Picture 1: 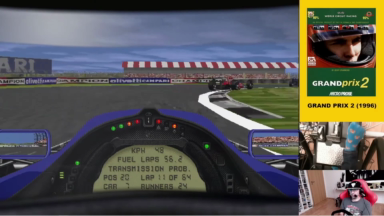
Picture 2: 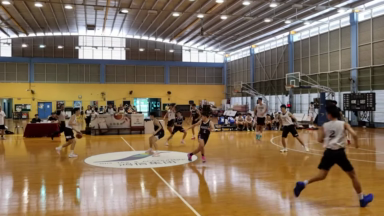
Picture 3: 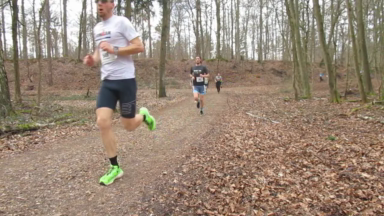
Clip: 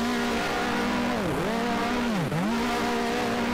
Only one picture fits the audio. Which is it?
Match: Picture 1